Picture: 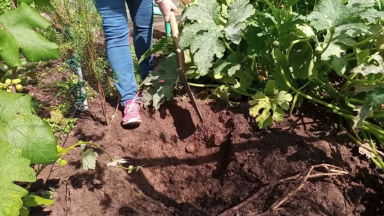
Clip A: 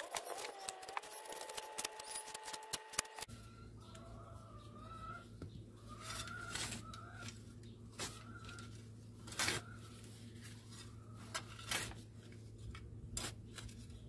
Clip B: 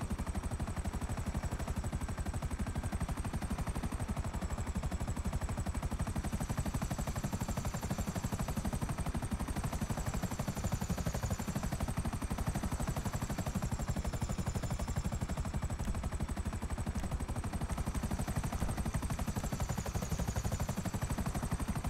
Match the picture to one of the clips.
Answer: A